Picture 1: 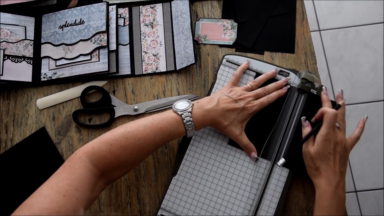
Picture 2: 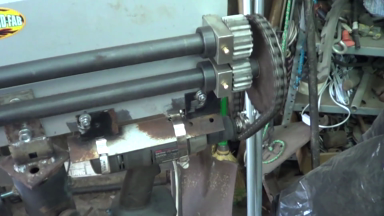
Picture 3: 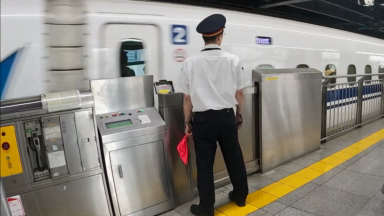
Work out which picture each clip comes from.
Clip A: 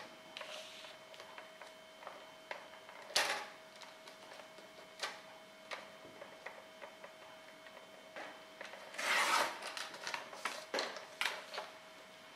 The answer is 1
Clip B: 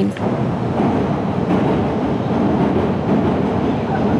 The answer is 3